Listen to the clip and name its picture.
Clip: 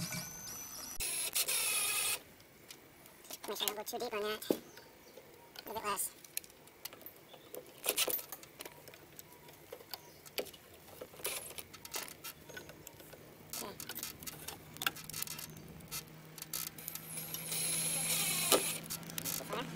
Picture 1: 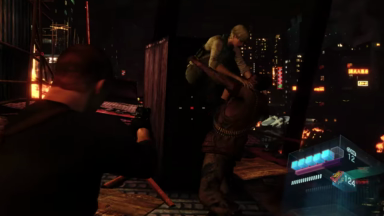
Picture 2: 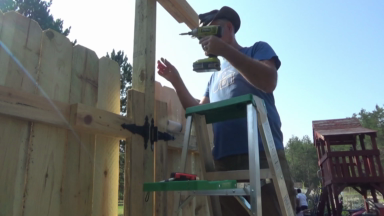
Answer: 2